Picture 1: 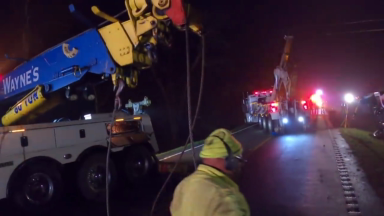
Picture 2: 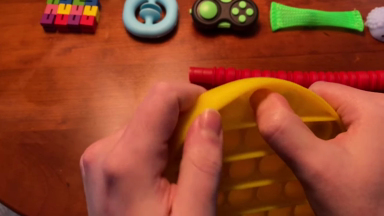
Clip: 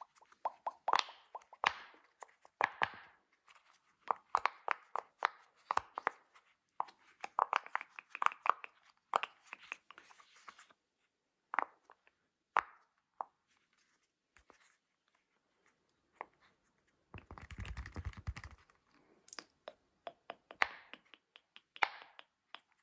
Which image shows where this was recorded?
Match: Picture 2